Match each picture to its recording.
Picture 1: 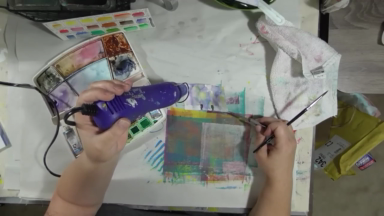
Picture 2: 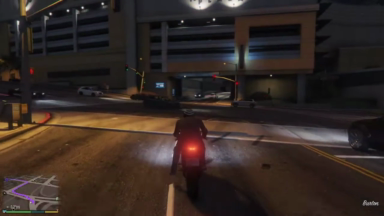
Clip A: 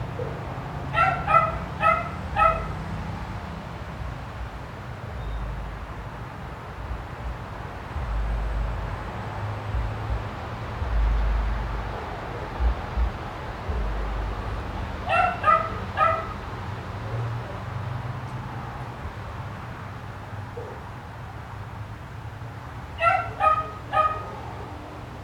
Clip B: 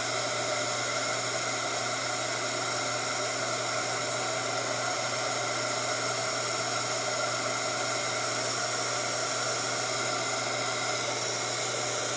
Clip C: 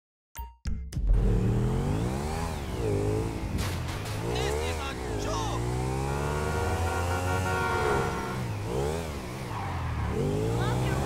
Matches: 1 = B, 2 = C